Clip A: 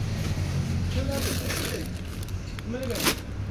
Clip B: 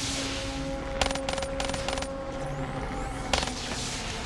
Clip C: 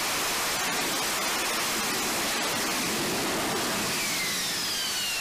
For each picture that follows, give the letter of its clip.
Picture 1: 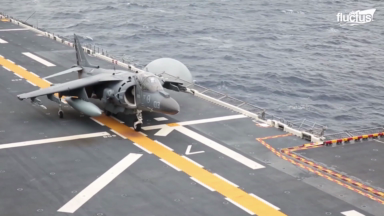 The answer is C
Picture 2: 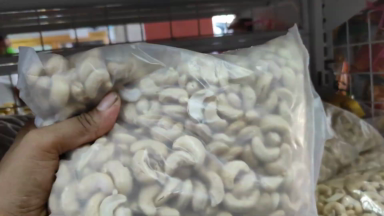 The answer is A